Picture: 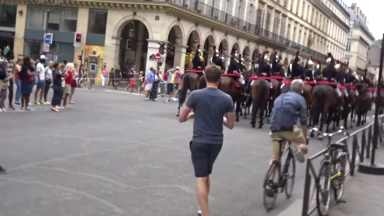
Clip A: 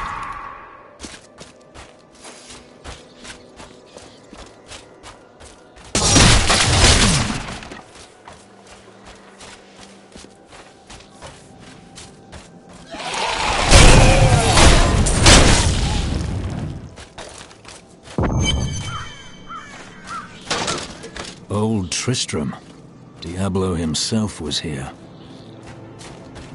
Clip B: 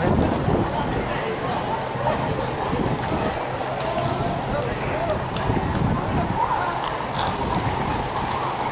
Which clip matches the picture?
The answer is B